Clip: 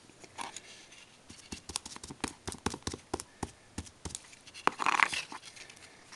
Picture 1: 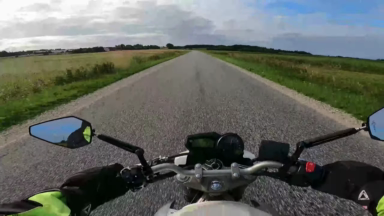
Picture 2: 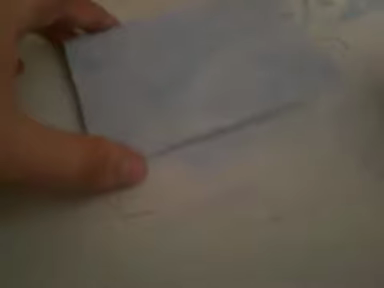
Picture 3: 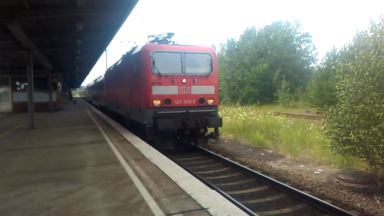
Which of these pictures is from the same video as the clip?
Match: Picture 2